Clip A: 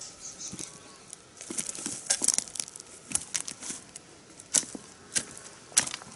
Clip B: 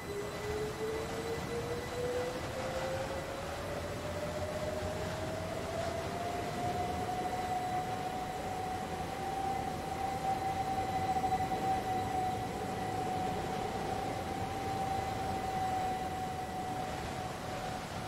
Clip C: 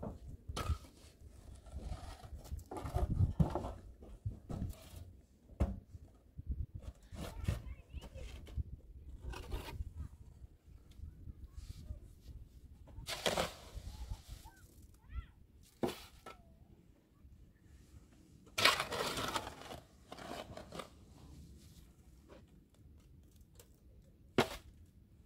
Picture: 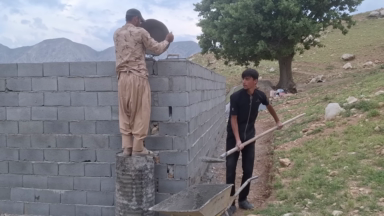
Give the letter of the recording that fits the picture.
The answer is C